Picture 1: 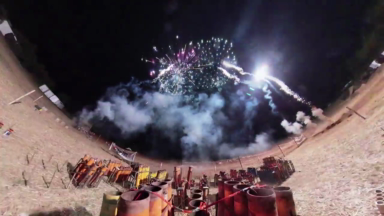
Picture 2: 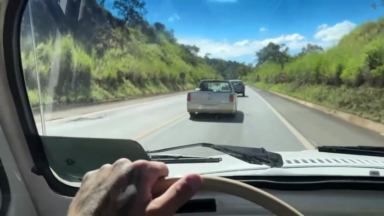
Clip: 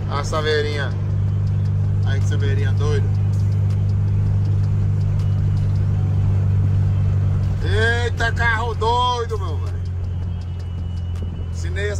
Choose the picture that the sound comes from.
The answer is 2